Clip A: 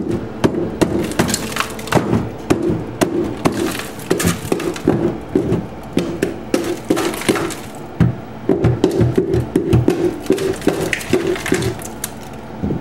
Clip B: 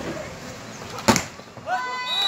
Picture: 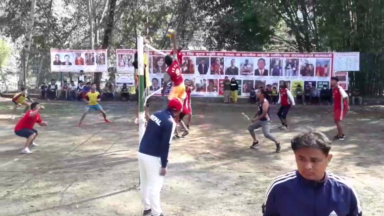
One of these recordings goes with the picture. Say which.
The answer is B